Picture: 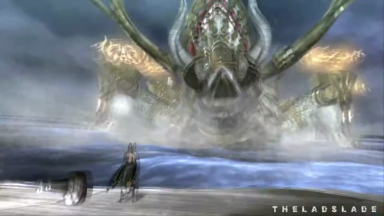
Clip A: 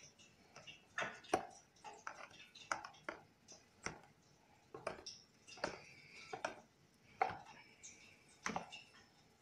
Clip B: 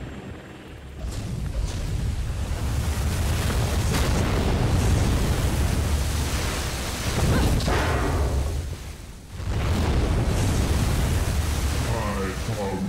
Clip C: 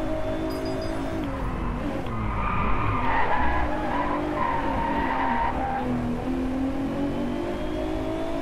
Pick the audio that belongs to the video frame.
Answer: B